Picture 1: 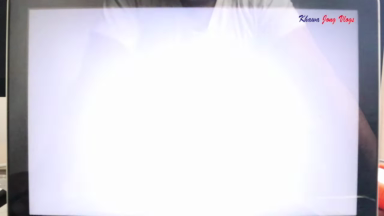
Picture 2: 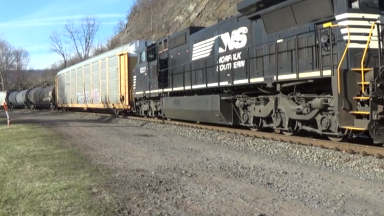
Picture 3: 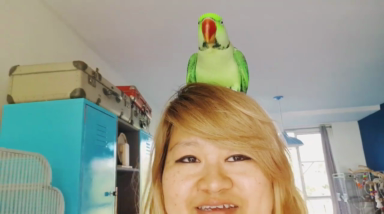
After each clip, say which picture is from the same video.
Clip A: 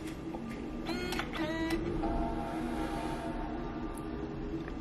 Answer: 1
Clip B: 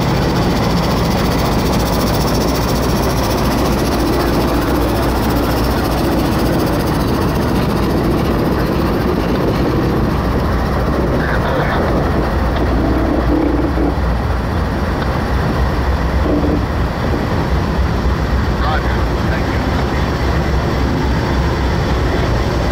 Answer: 2